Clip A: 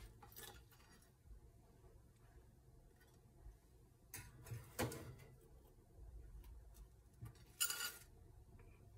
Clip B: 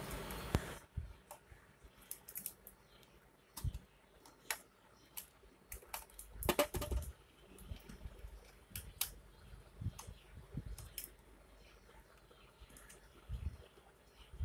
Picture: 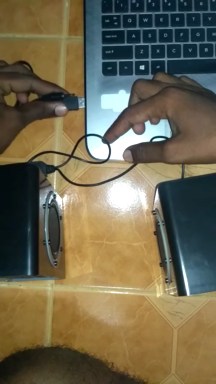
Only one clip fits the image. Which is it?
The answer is B